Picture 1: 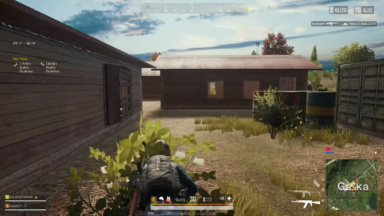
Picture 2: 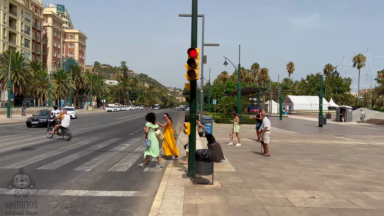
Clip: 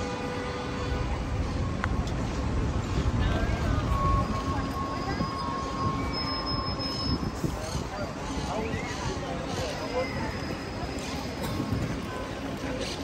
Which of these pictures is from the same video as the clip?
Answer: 2